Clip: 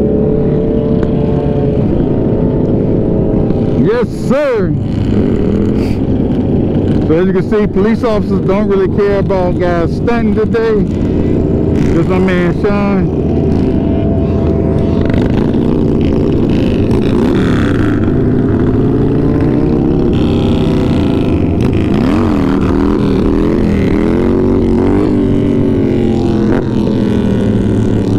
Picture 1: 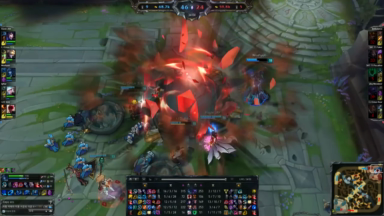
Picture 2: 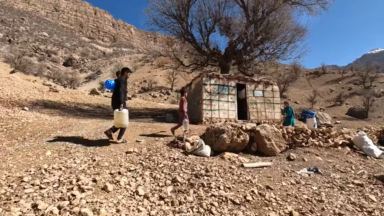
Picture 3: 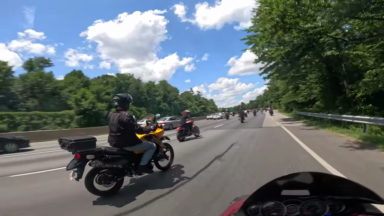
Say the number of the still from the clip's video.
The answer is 3